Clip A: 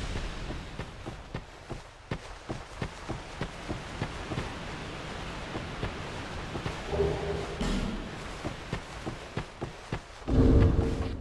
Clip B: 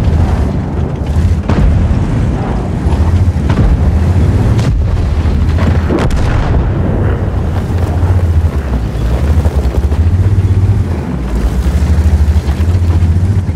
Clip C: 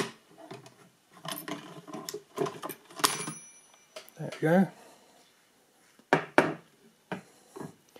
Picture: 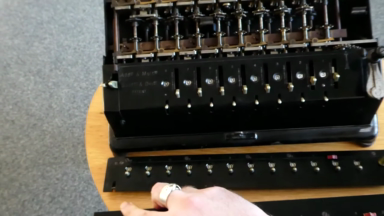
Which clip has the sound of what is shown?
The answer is C